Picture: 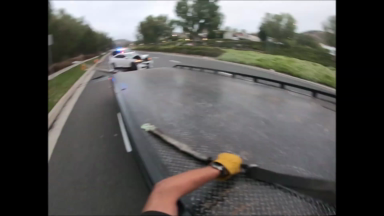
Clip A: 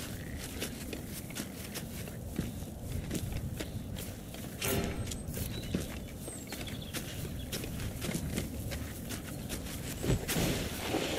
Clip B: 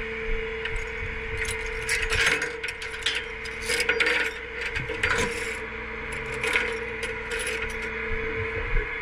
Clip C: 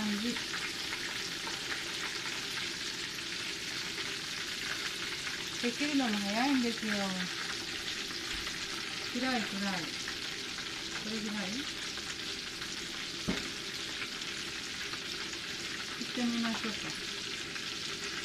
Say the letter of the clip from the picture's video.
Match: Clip B